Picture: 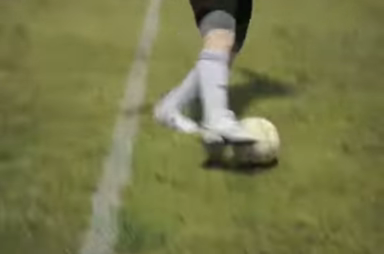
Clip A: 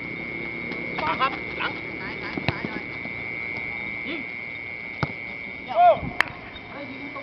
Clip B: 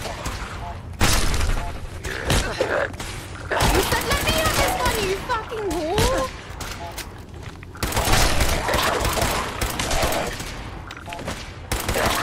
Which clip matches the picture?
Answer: A